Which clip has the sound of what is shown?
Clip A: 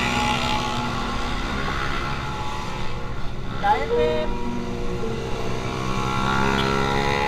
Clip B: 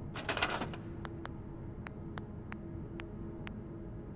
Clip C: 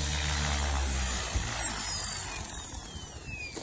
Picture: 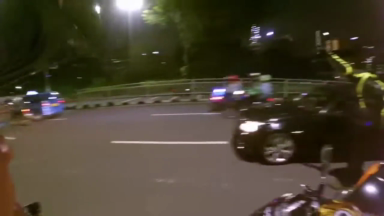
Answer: A